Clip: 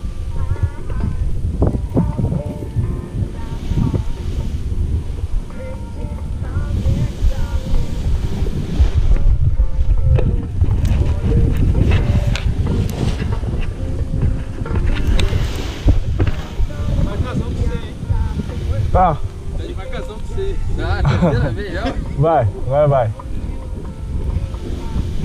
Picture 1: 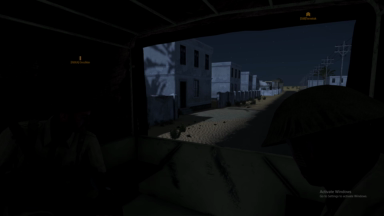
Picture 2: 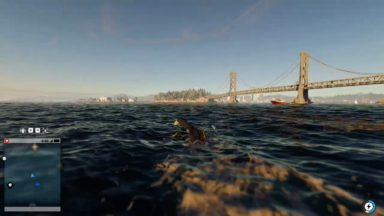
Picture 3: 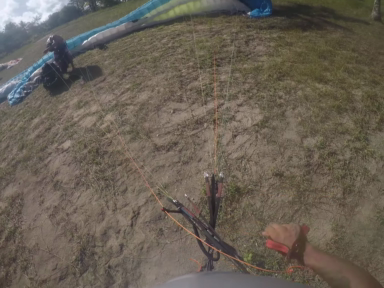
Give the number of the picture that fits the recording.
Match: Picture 3